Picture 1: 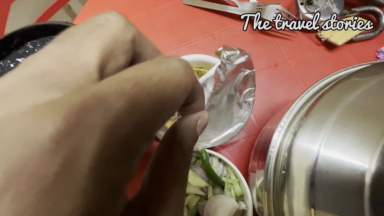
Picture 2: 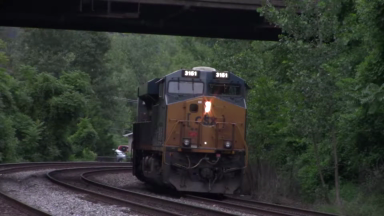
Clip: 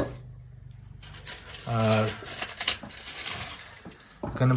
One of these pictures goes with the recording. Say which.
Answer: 1